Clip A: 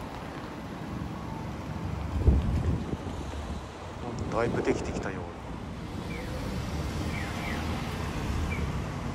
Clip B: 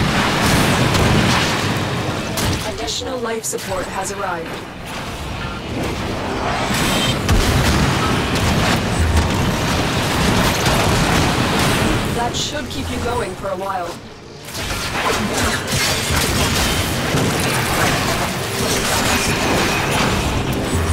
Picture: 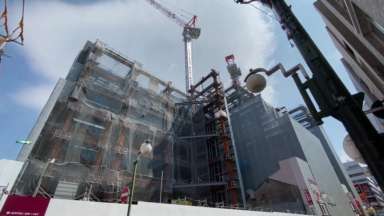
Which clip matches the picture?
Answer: A